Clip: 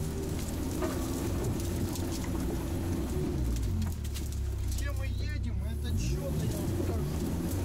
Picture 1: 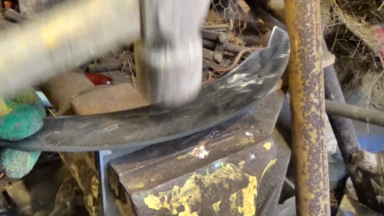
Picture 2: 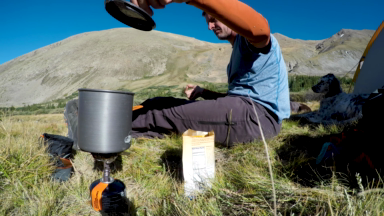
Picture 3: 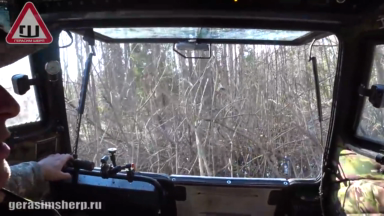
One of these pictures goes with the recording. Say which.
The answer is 3